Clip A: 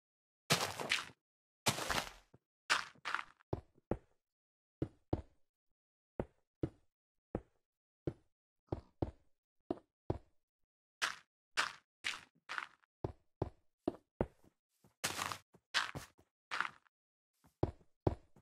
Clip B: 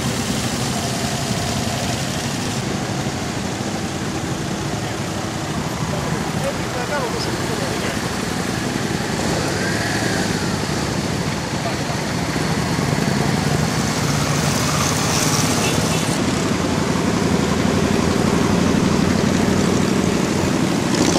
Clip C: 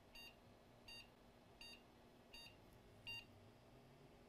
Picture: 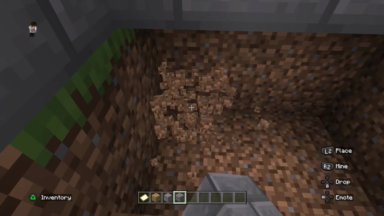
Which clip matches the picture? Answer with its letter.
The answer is A